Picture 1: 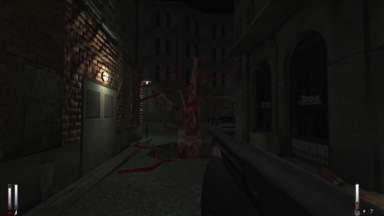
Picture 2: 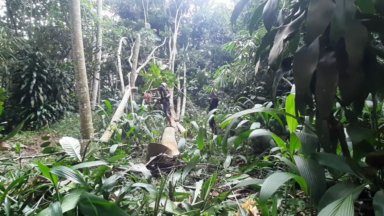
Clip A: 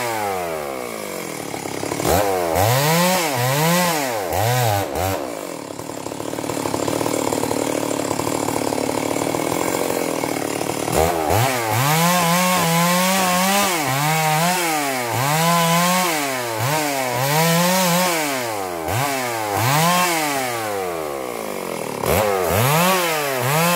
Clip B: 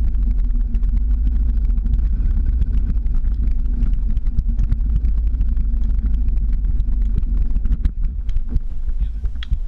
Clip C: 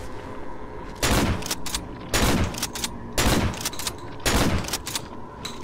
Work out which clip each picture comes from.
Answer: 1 C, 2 A